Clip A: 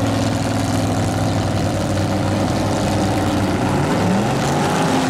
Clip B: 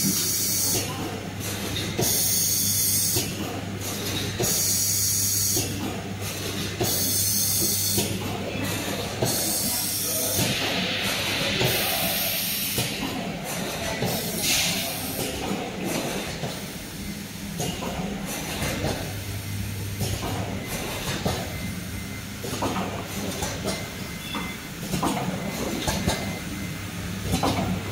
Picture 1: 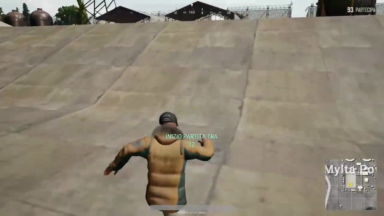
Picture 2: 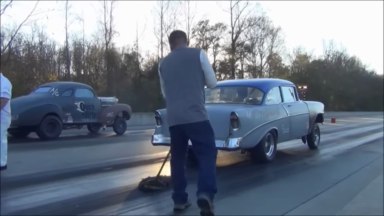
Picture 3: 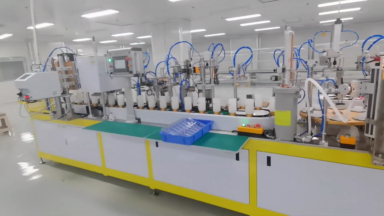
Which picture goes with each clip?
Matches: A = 2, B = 3